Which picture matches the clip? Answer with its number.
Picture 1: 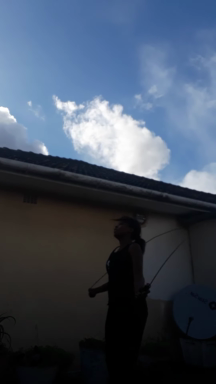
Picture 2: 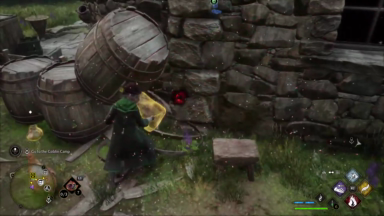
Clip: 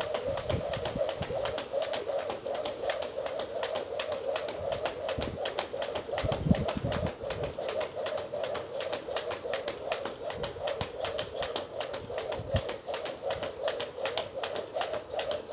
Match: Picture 1